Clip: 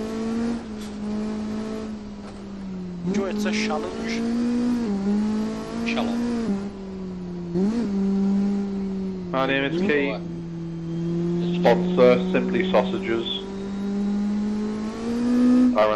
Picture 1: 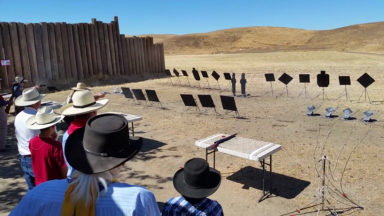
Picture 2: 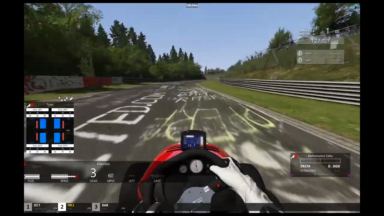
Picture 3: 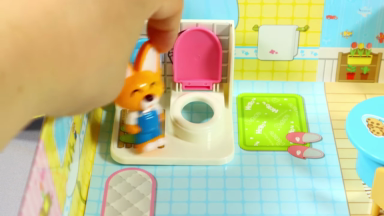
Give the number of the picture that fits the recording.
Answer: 2